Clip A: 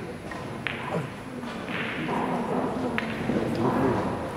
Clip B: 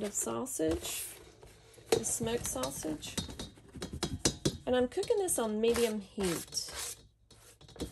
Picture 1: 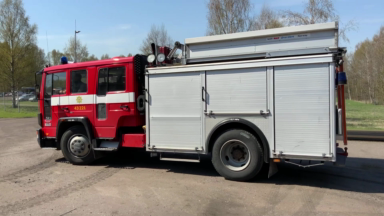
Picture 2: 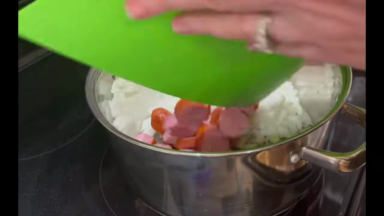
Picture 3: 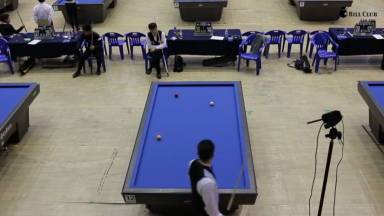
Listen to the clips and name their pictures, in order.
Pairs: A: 3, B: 2